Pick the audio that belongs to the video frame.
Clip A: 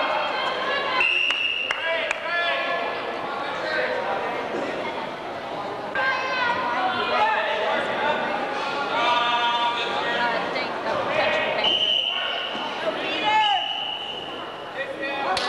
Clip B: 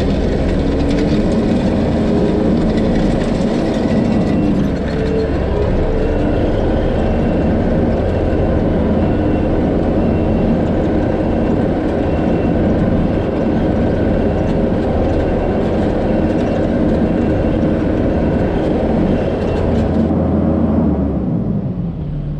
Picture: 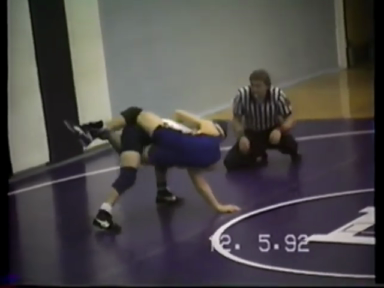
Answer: A